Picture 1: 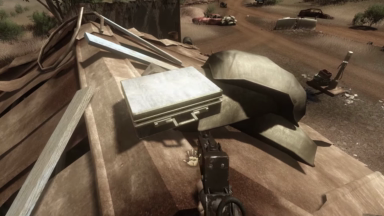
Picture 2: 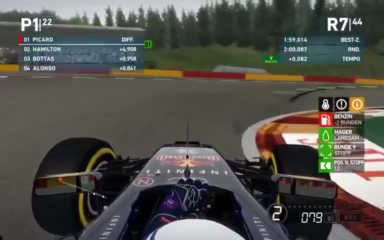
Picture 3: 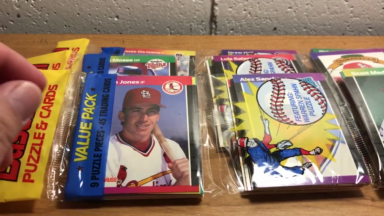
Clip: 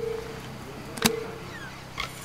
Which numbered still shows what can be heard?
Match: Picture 1